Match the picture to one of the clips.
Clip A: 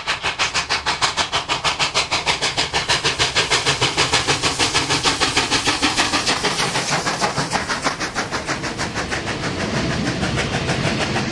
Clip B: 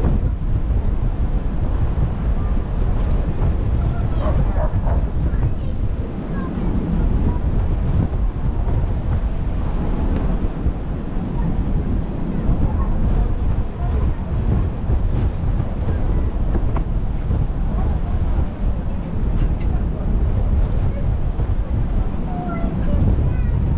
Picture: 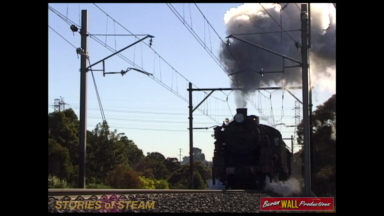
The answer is A